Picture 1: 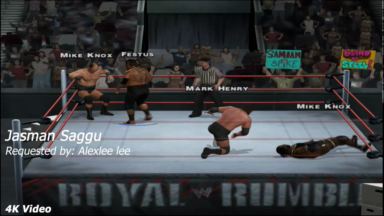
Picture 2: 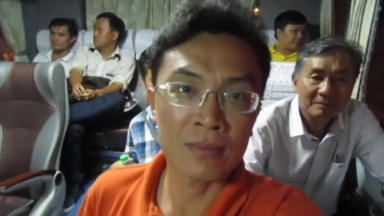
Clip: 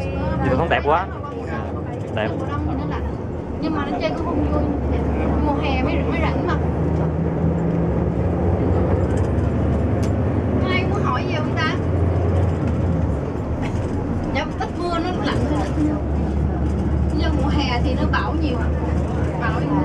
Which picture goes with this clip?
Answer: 2